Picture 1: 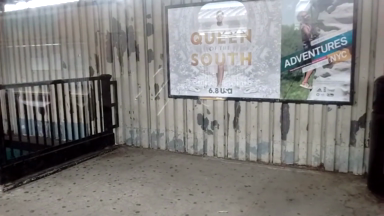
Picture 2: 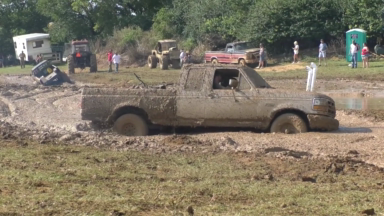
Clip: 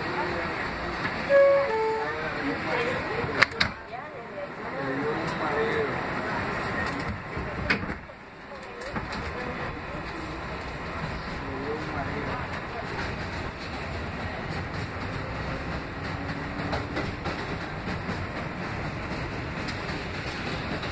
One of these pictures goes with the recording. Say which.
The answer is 1